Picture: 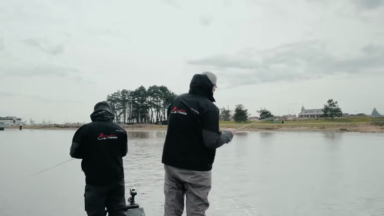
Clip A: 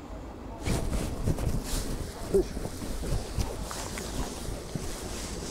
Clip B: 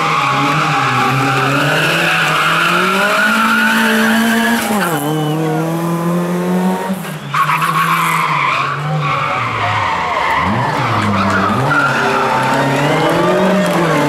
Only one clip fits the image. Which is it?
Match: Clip A